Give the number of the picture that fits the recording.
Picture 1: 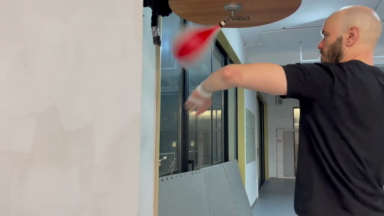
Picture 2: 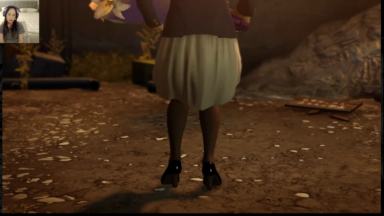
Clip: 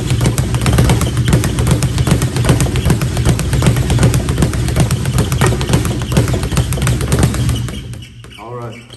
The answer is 1